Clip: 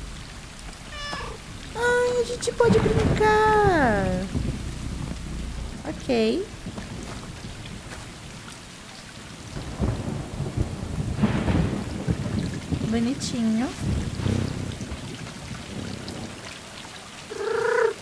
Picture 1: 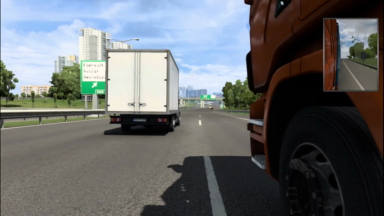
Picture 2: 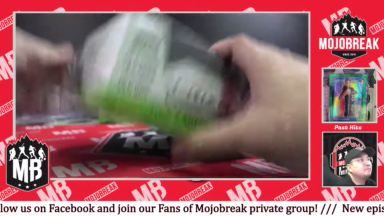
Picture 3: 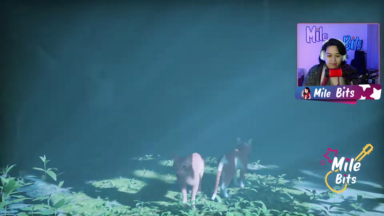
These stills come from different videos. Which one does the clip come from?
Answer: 3